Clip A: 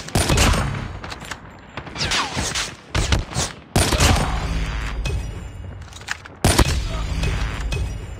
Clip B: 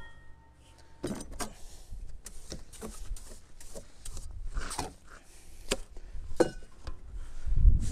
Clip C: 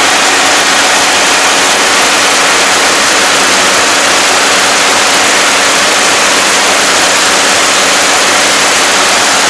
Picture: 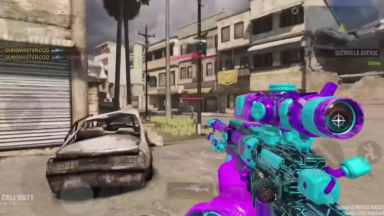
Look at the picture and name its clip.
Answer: A